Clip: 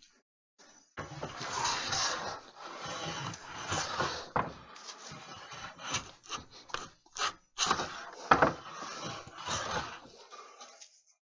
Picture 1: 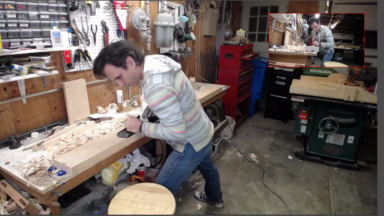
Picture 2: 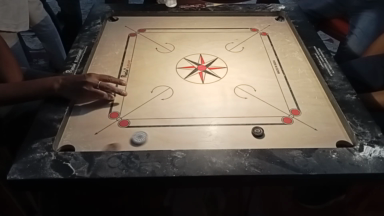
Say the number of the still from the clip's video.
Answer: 1